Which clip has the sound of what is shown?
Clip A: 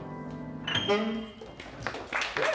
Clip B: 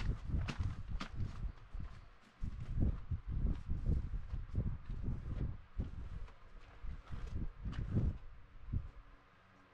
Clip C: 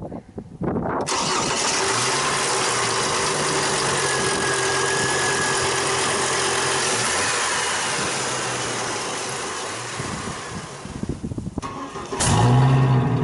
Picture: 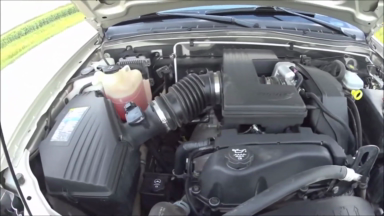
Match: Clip C